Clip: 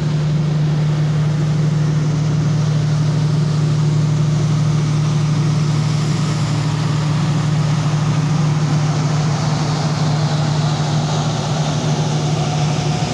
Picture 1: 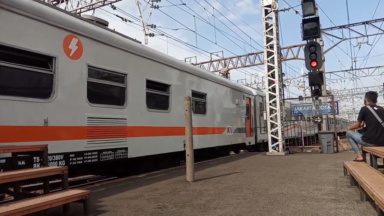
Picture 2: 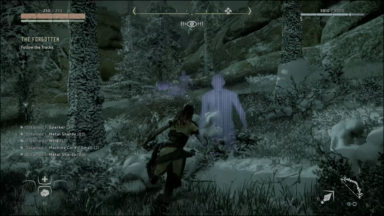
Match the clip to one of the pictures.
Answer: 1